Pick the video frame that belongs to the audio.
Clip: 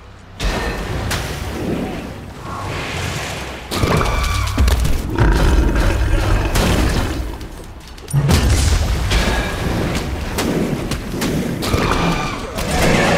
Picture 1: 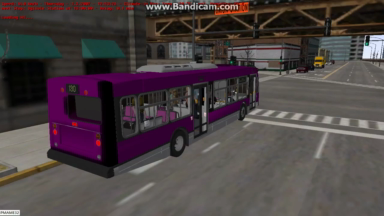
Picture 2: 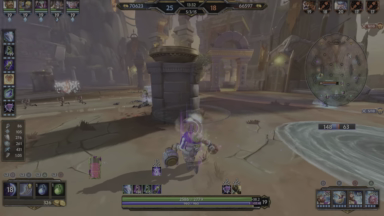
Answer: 2